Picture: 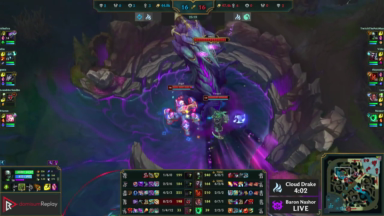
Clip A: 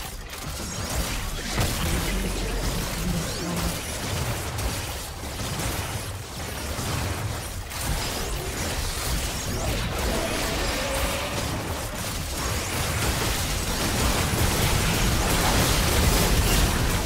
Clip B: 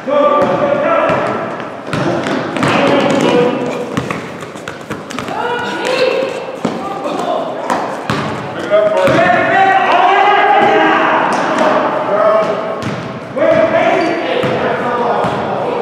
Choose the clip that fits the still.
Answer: A